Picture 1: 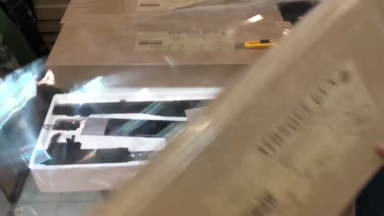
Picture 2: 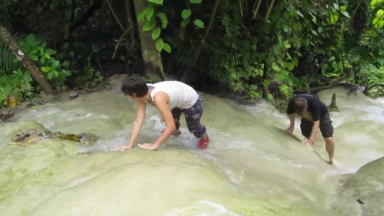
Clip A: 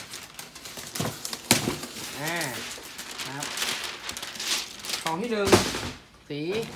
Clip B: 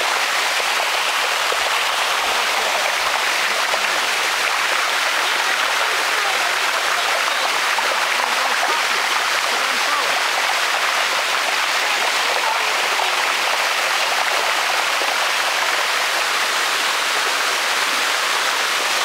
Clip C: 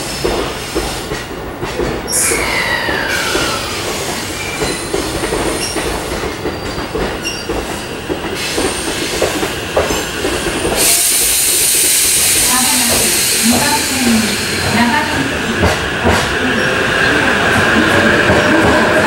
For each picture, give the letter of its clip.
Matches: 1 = A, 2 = B